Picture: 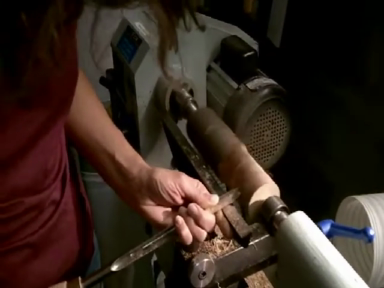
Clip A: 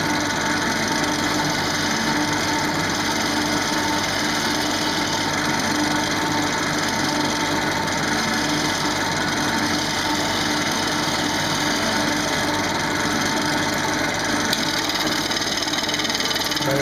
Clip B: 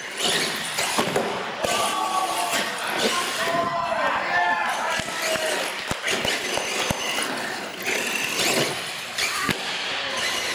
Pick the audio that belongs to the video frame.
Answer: A